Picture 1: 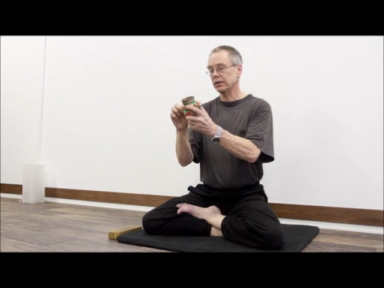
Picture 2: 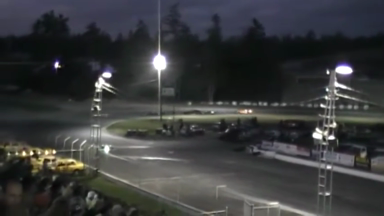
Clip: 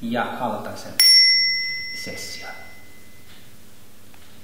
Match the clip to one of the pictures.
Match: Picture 1